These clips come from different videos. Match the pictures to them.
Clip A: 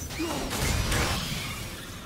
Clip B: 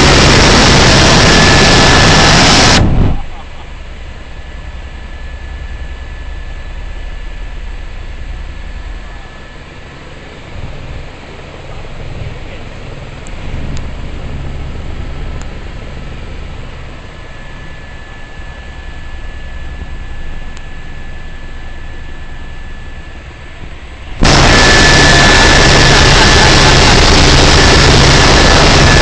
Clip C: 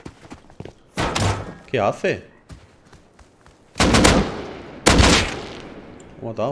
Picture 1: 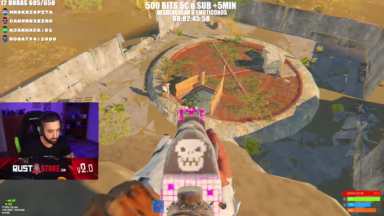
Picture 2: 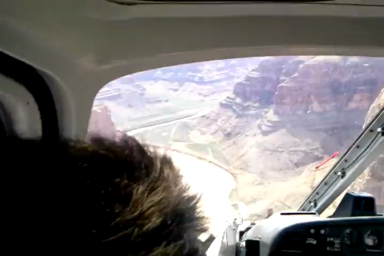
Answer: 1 C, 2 B